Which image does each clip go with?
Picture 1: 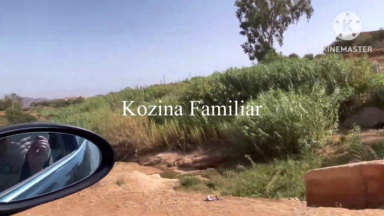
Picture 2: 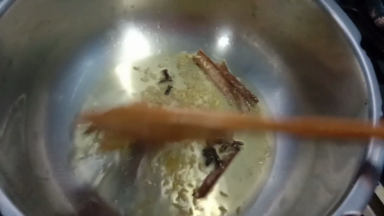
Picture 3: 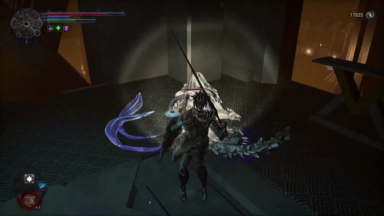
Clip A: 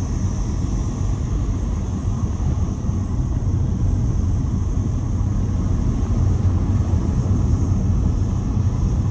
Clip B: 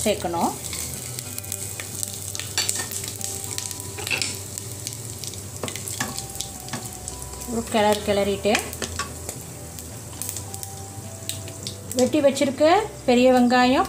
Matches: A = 1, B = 2